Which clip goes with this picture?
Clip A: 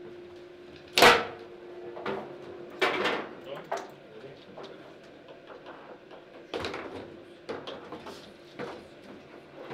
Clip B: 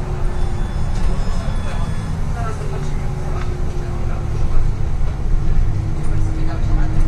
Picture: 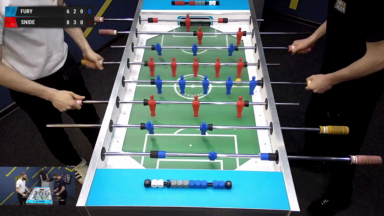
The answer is A